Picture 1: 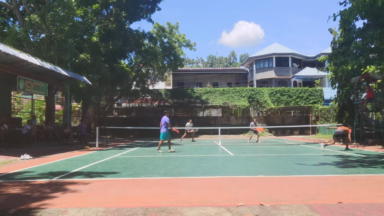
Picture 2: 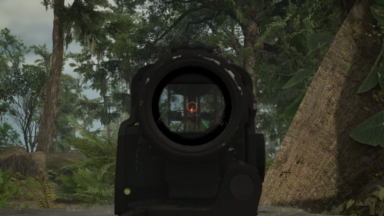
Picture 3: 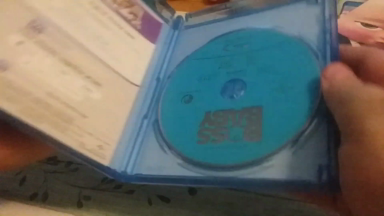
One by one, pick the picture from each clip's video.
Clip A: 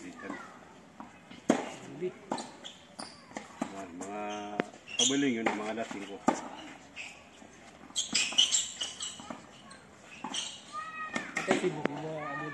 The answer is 1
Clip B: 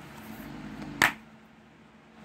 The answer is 3